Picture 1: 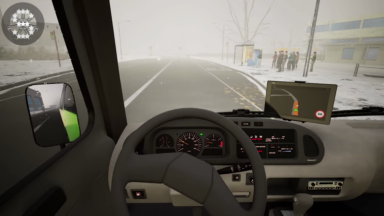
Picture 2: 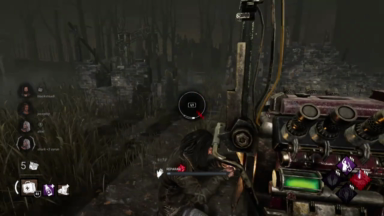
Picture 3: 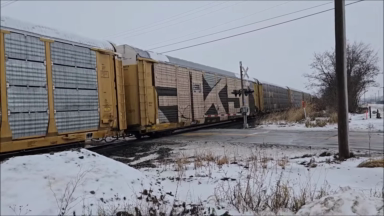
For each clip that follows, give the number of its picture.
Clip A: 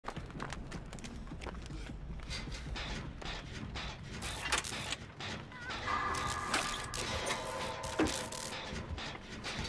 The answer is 2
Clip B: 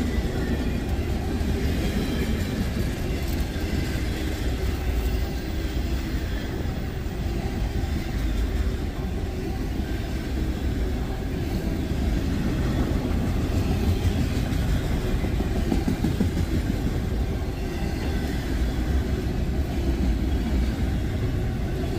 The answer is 3